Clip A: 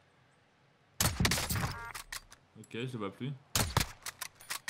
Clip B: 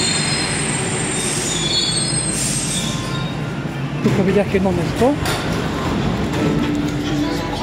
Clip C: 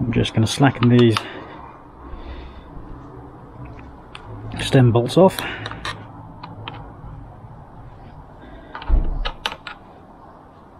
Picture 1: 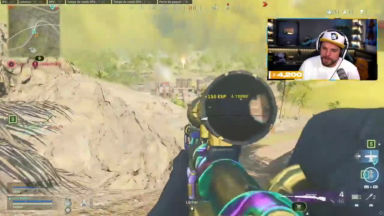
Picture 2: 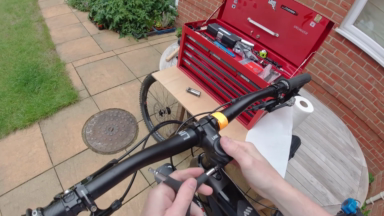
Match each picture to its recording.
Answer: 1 A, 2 C